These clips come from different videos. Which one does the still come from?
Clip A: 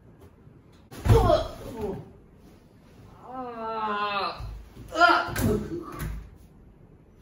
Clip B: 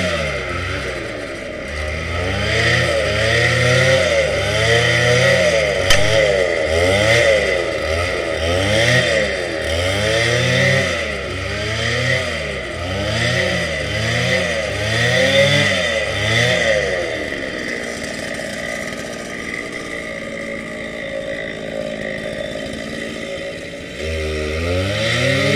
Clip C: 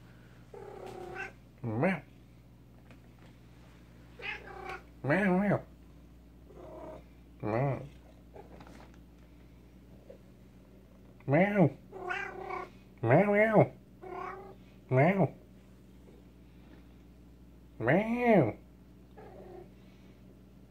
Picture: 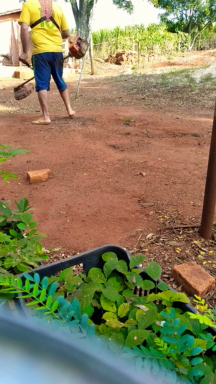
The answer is B